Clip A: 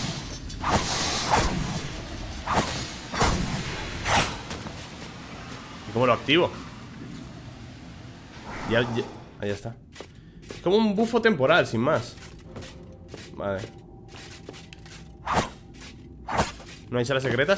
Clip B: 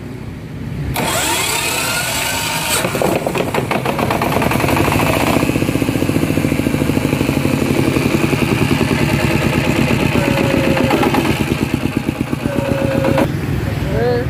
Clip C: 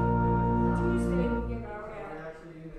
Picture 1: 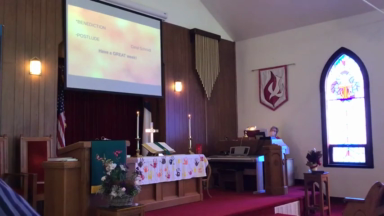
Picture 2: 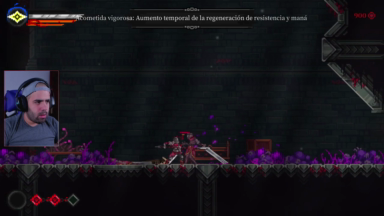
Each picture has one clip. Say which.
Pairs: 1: C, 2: A